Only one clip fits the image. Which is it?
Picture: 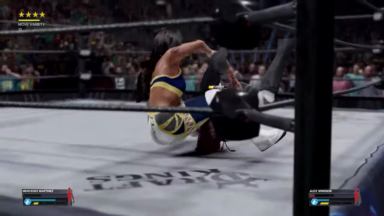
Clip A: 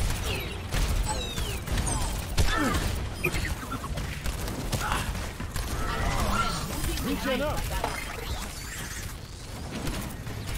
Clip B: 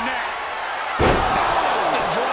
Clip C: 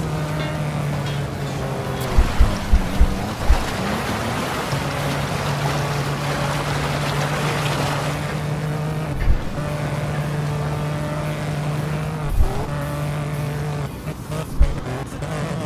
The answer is B